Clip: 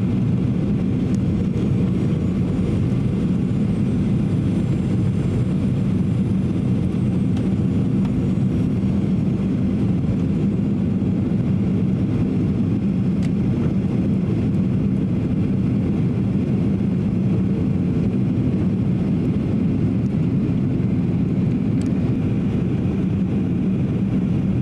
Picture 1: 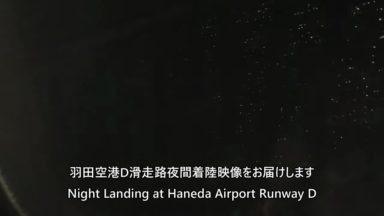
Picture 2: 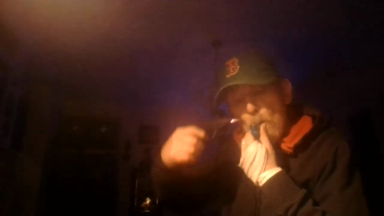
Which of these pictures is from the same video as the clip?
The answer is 1